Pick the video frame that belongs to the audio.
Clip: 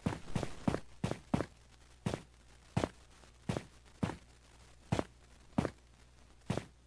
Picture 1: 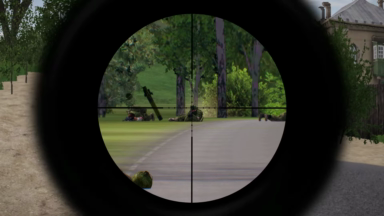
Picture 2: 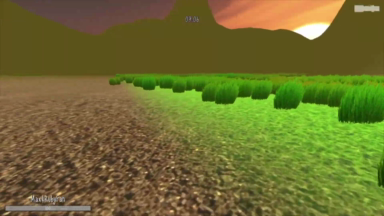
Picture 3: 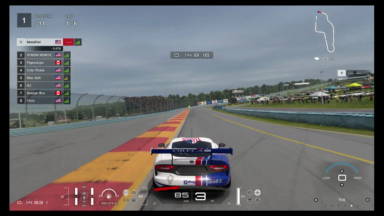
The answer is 2